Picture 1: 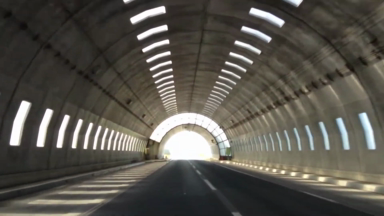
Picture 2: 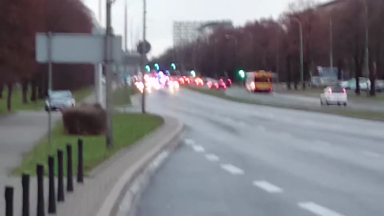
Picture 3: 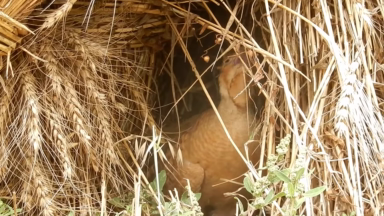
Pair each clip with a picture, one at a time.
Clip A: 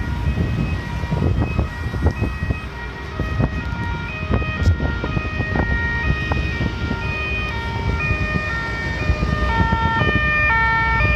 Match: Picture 2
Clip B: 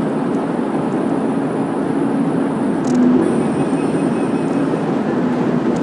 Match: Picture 1